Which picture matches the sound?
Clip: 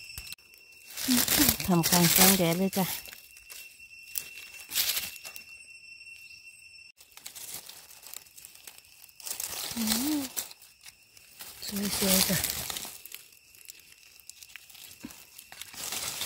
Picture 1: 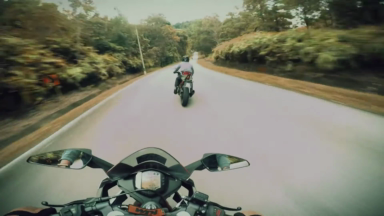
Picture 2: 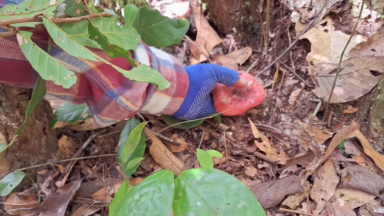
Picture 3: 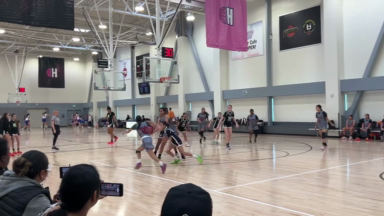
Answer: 2